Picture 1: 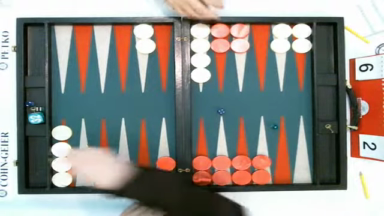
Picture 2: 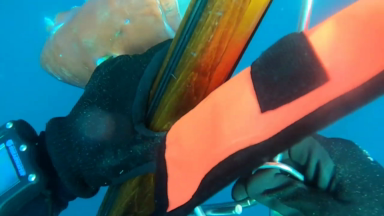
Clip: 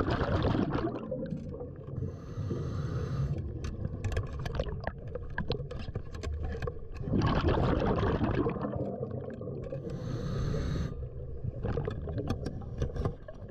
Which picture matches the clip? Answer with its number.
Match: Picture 2